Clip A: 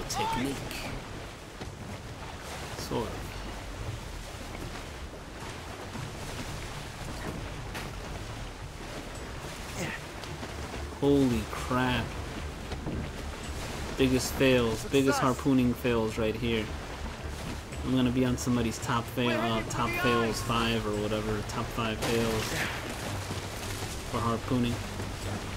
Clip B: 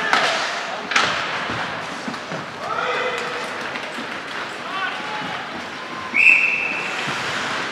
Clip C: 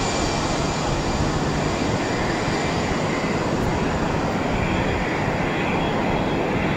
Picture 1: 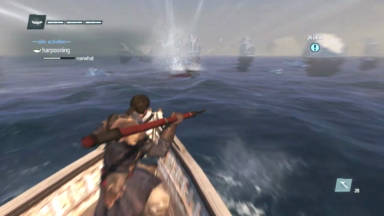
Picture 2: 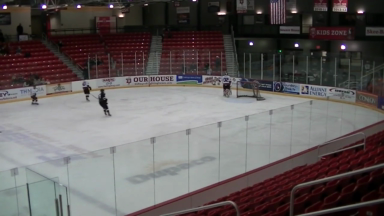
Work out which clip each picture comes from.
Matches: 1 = A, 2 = B